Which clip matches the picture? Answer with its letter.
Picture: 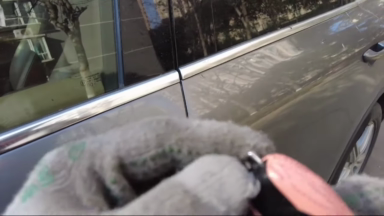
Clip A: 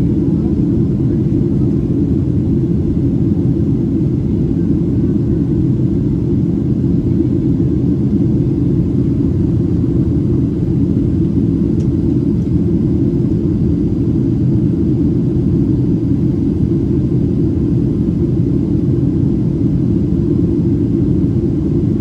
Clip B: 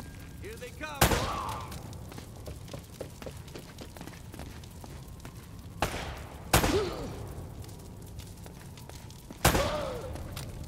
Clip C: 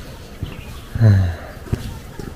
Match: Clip C